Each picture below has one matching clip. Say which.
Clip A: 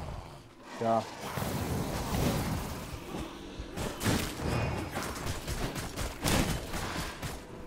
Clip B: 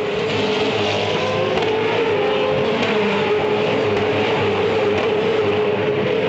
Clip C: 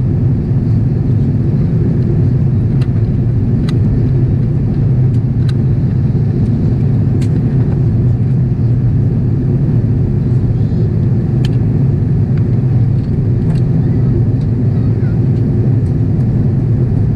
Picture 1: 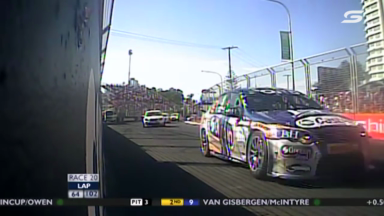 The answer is B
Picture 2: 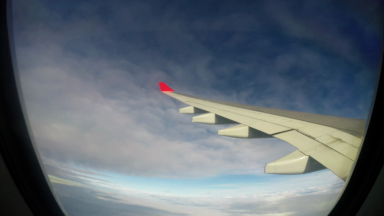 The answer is C